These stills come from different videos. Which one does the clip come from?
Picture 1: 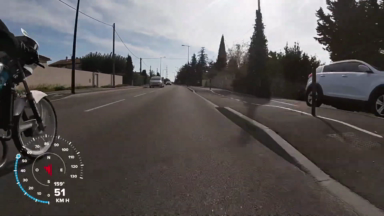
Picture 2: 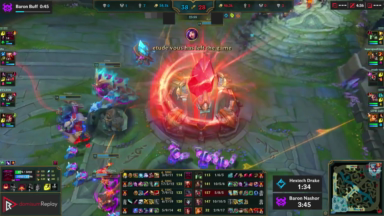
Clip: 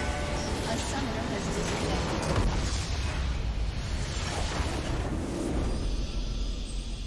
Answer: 2